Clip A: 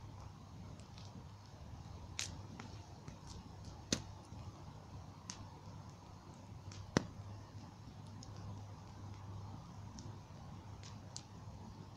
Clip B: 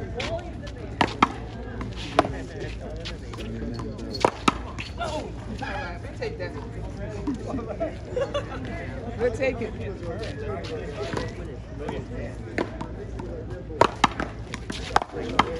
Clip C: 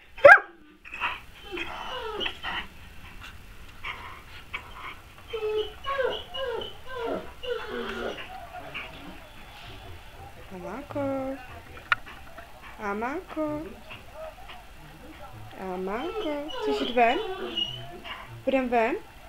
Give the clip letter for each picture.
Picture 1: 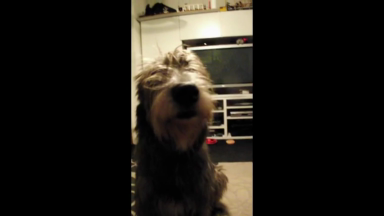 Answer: C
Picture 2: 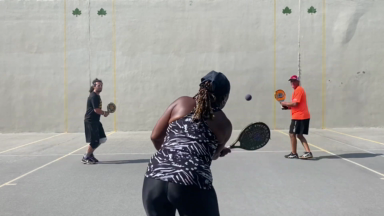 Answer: B